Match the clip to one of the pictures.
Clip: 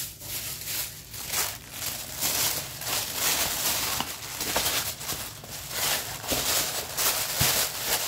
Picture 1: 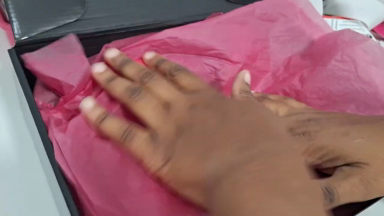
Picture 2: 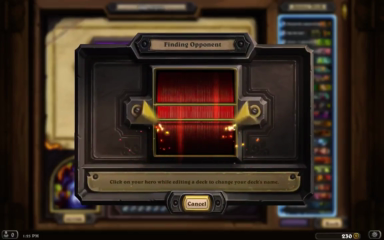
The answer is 1